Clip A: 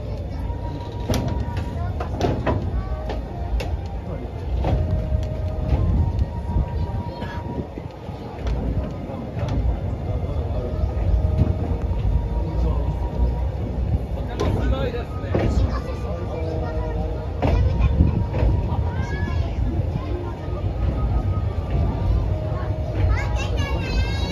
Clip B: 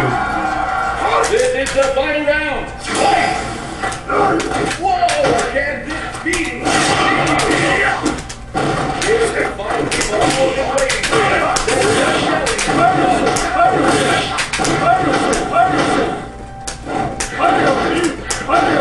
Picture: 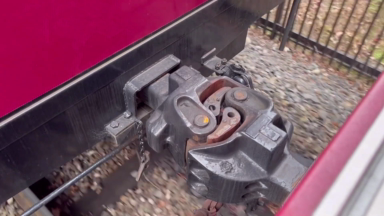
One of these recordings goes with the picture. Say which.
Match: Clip A